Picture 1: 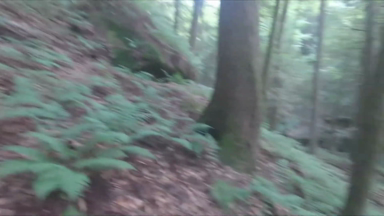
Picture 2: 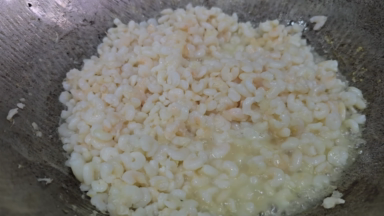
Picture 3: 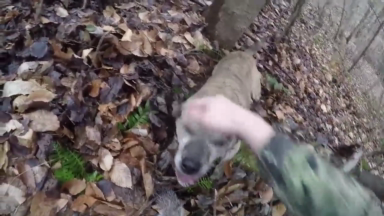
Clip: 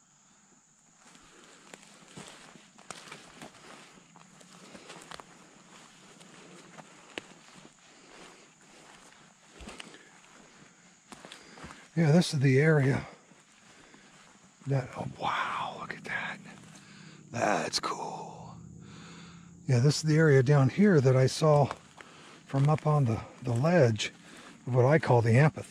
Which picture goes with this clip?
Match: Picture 1